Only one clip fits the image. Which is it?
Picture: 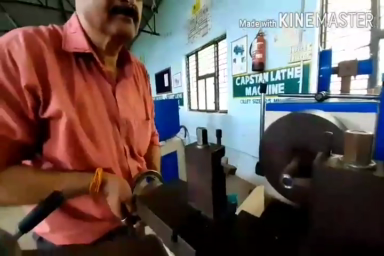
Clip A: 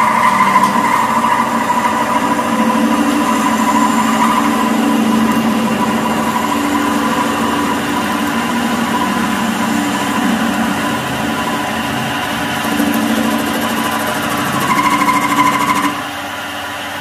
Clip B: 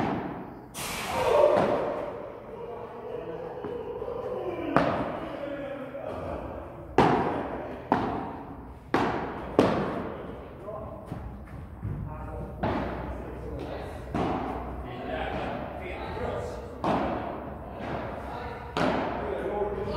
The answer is A